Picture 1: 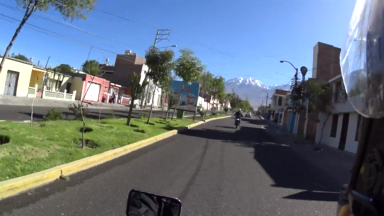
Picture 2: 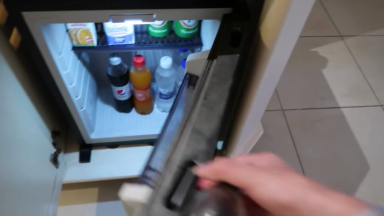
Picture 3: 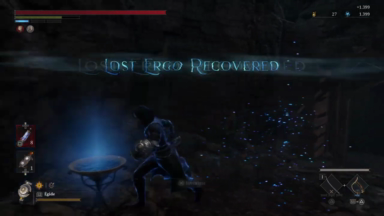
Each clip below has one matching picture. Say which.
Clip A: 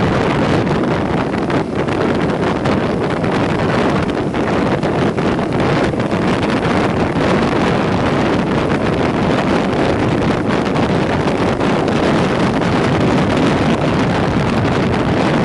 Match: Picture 1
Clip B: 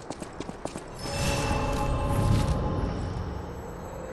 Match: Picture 3